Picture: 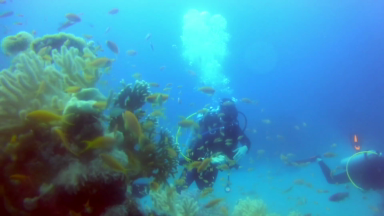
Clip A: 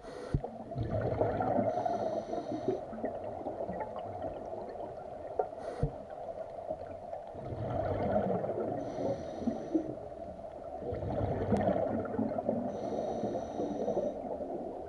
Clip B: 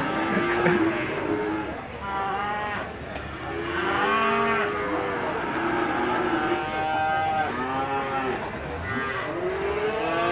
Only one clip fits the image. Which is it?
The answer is A